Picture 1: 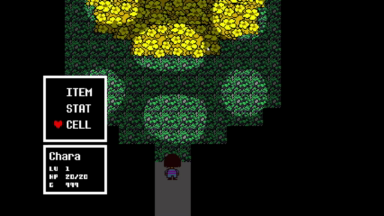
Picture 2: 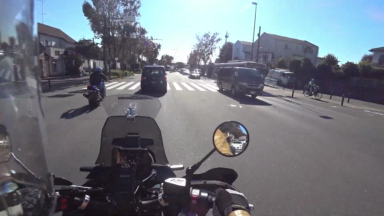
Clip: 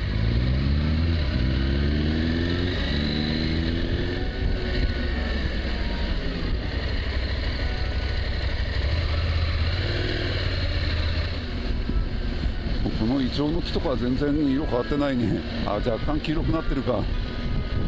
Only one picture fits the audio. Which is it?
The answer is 2